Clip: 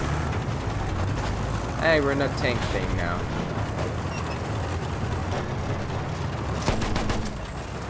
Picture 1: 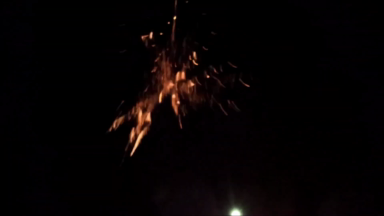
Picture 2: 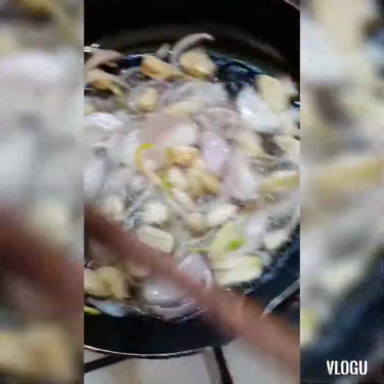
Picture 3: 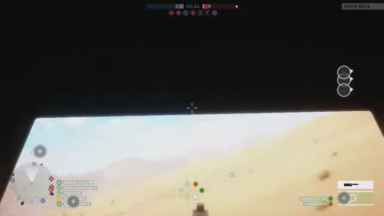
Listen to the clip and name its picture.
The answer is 3